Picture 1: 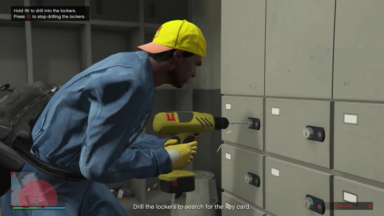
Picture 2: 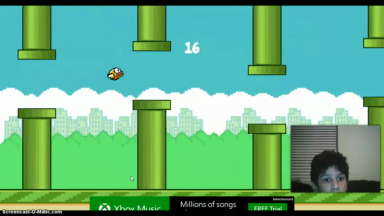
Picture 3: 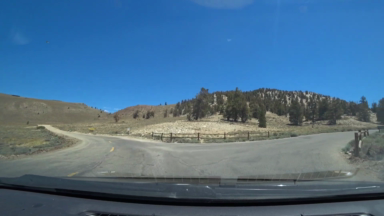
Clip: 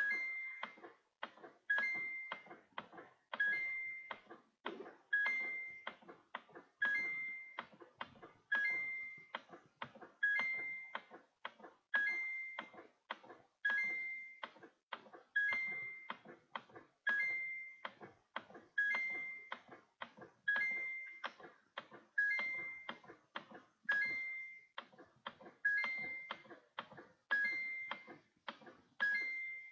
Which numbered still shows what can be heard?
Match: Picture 2